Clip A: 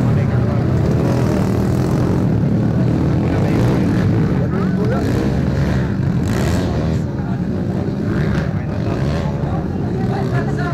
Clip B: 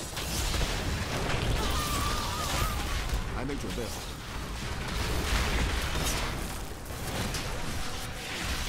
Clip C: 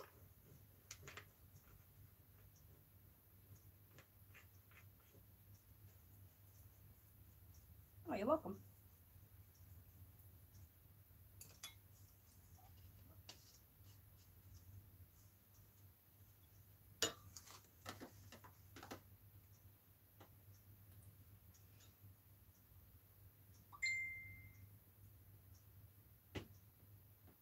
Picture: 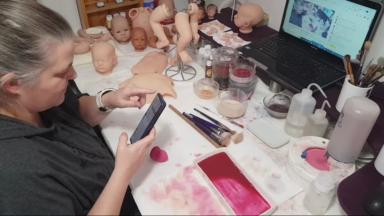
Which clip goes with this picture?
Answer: C